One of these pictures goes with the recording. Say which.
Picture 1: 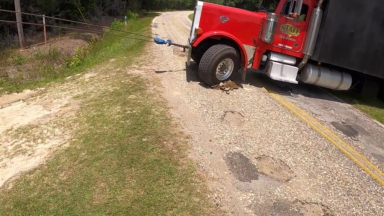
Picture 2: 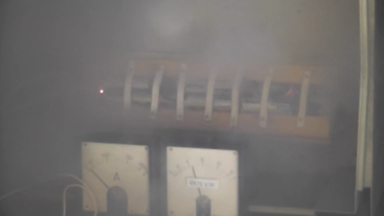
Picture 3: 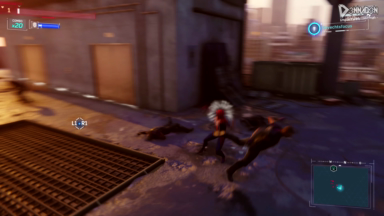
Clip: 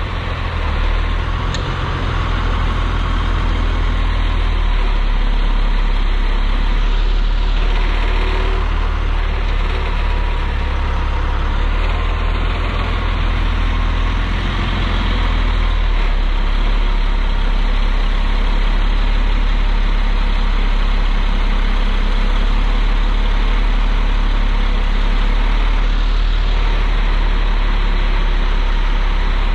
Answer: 1